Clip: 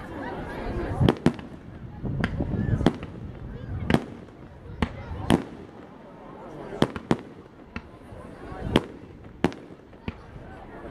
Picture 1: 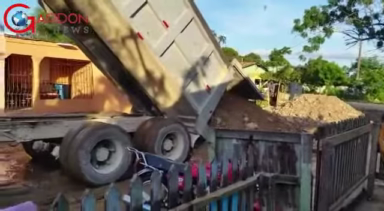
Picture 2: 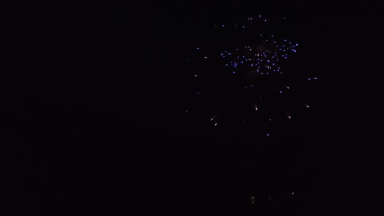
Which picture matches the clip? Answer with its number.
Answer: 2